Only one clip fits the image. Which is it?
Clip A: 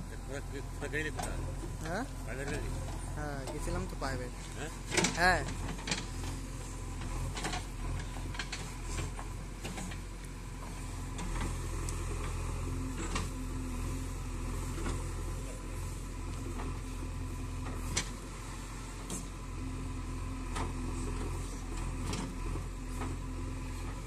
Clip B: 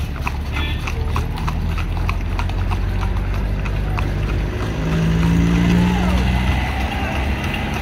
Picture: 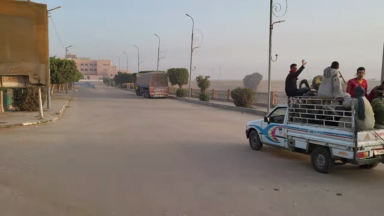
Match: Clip B